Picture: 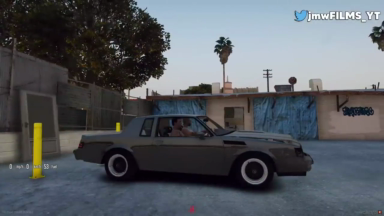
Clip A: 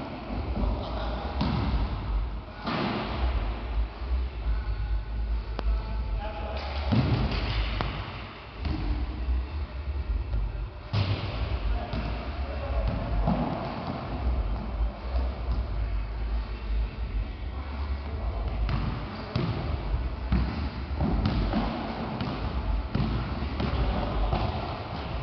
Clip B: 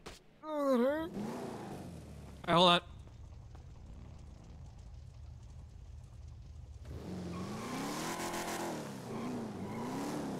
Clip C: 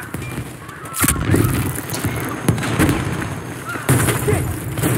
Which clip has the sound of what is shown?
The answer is B